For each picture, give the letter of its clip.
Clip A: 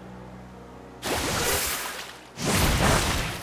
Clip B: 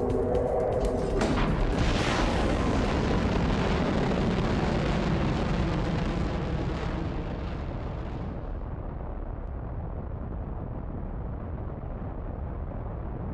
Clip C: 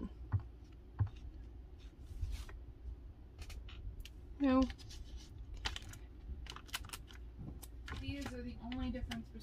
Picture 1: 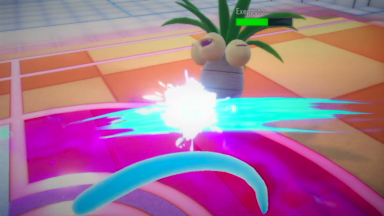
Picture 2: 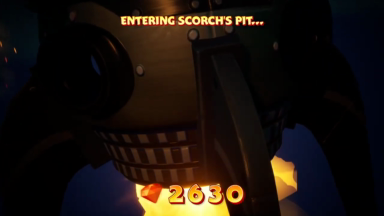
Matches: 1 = A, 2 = B